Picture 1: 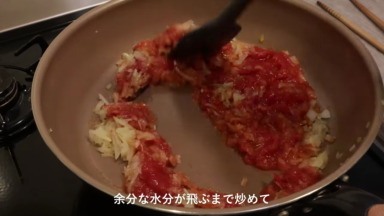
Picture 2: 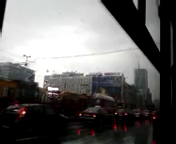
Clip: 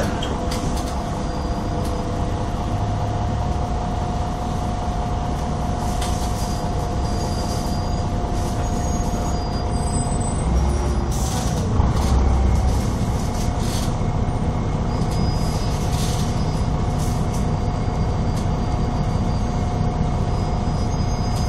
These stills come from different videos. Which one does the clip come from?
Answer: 2